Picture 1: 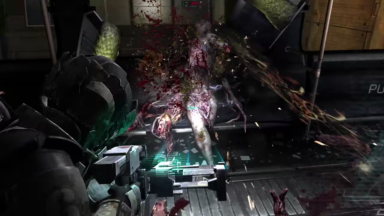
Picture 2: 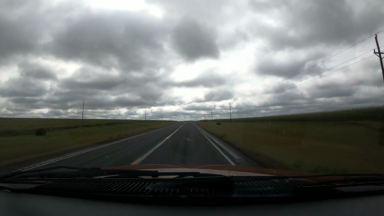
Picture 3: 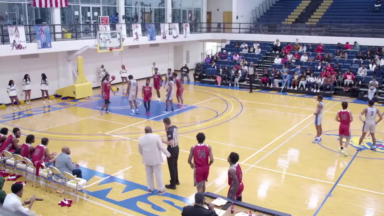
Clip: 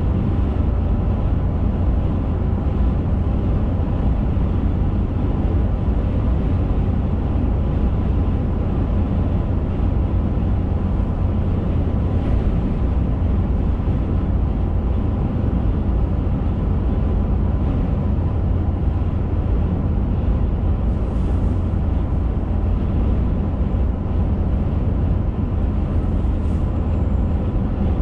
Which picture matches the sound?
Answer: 2